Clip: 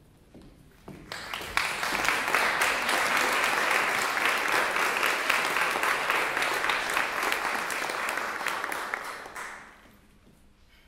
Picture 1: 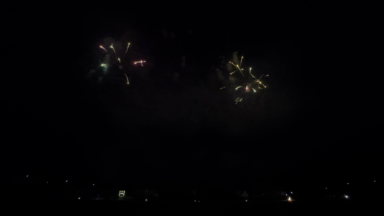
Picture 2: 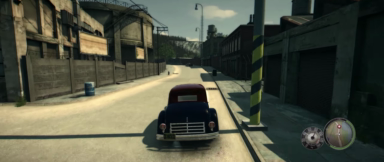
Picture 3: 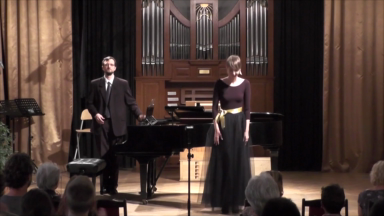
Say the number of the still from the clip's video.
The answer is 3